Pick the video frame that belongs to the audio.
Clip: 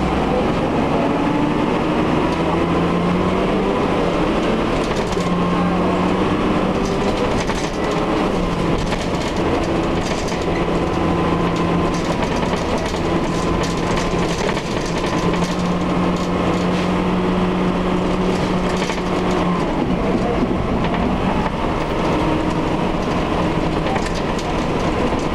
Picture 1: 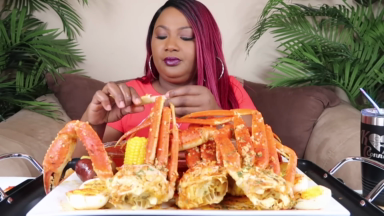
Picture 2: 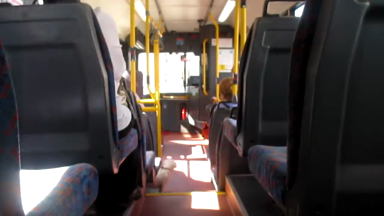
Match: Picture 2